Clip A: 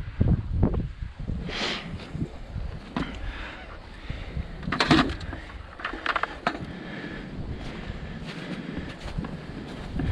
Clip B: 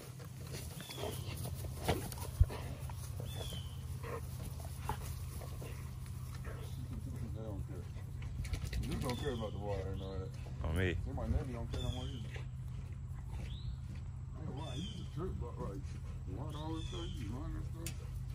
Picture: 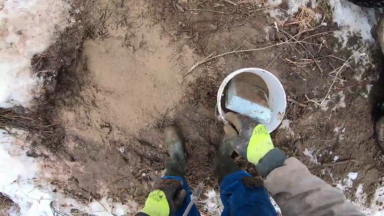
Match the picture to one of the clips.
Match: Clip A